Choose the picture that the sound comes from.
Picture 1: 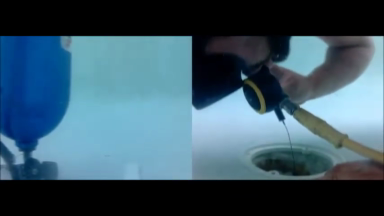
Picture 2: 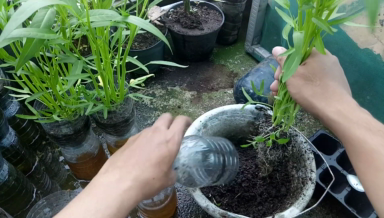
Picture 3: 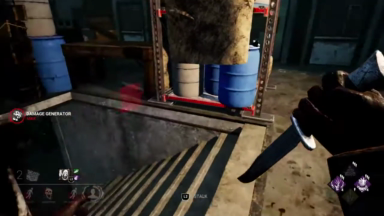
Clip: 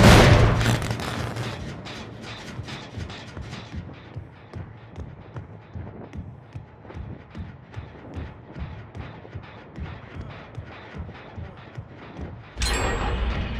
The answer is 3